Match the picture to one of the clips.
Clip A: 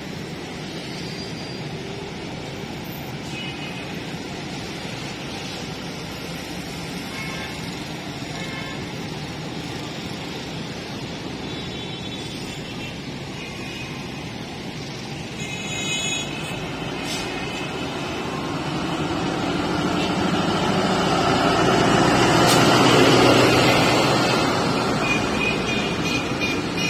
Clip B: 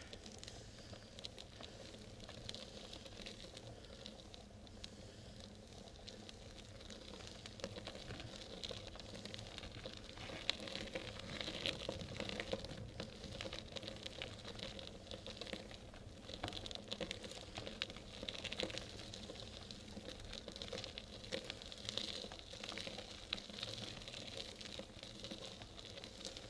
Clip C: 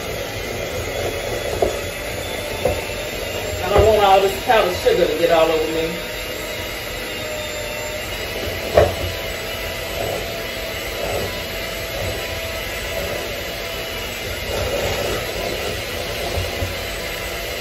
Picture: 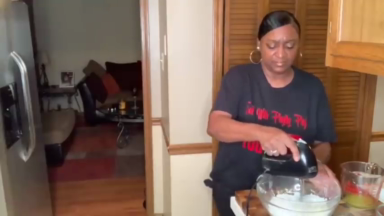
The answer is C